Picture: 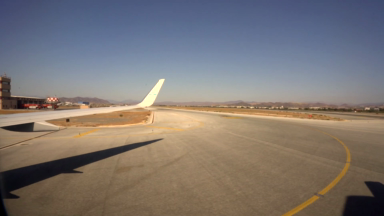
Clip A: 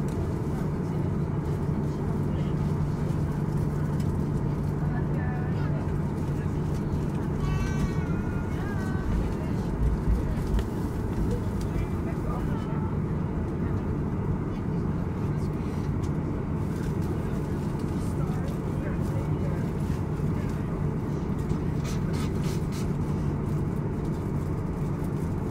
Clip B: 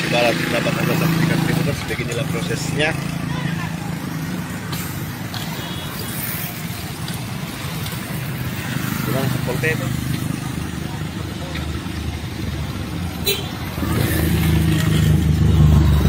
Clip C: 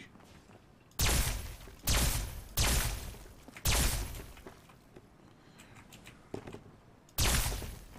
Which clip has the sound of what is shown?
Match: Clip A